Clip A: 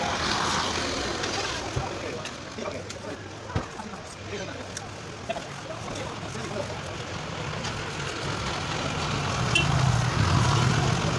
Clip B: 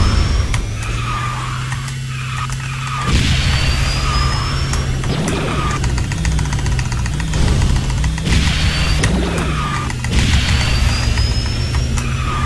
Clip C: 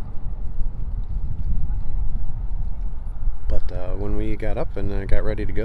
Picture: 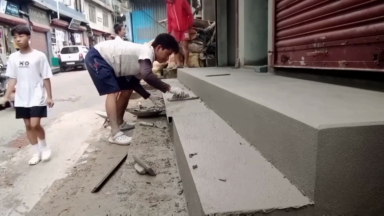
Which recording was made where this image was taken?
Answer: A